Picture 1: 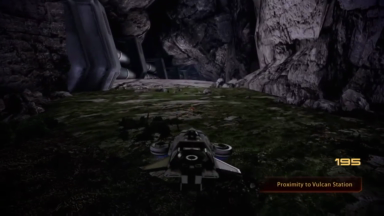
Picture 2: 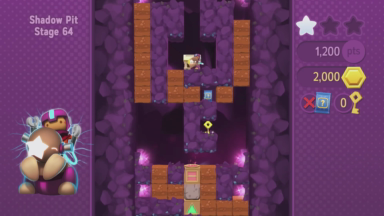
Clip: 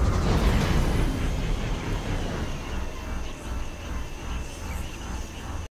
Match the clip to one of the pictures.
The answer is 1